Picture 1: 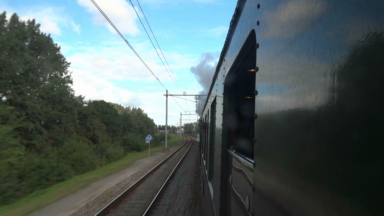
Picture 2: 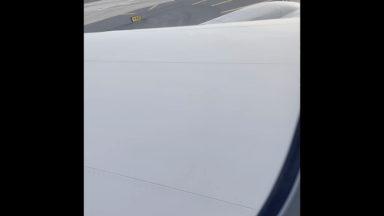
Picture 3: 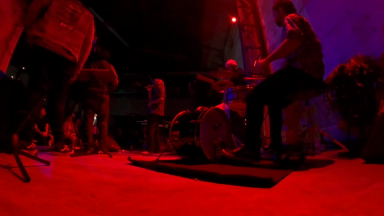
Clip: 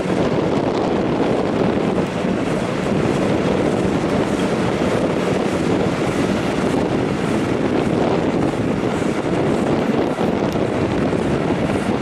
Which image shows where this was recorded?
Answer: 1